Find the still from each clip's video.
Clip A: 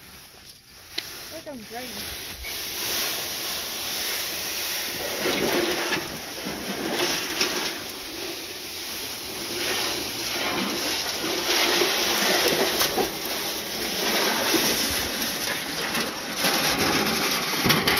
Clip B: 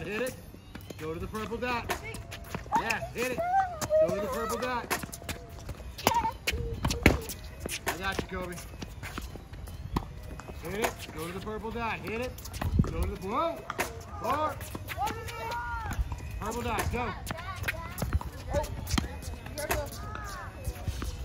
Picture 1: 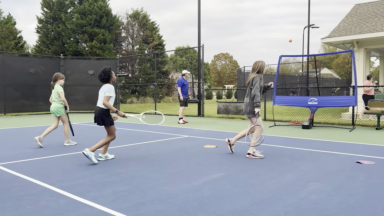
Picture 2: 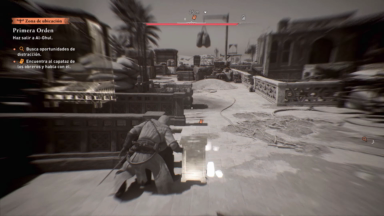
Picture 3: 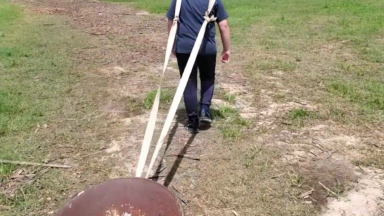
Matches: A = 3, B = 1